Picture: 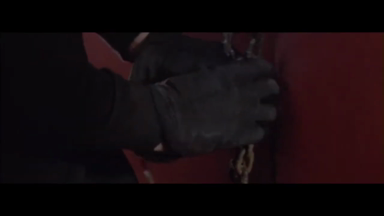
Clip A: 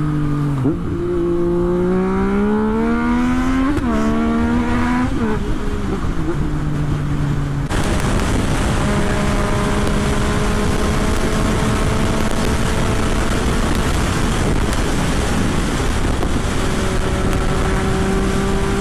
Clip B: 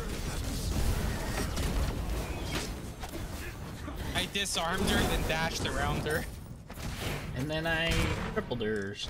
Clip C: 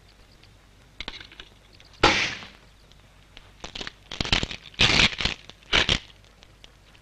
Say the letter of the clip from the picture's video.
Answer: C